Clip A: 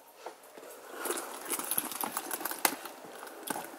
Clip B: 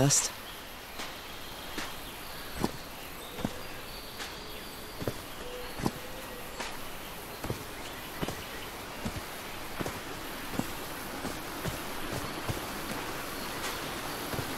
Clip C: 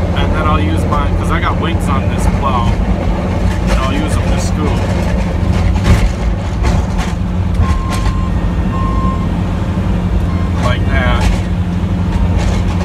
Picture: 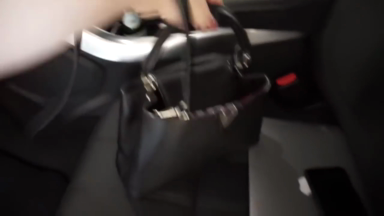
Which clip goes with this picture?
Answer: A